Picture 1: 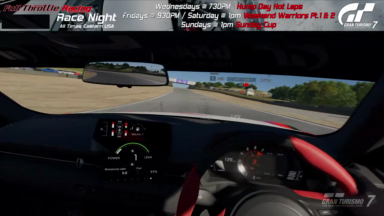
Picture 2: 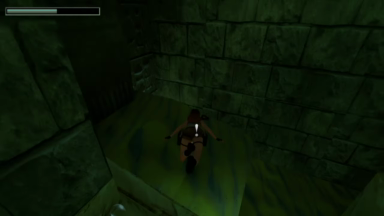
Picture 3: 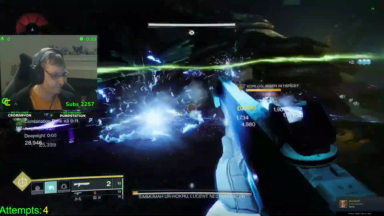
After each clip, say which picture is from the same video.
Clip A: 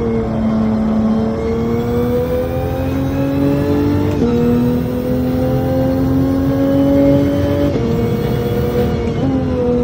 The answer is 1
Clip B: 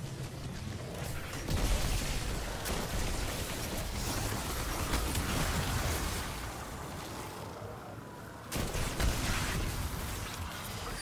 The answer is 3